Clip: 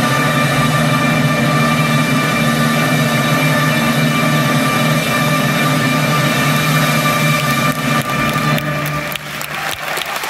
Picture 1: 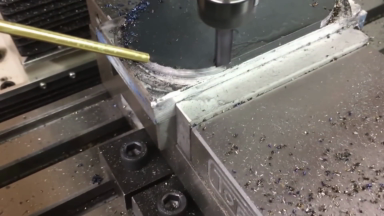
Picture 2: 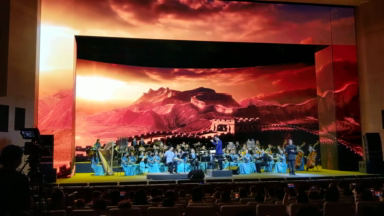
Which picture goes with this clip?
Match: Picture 2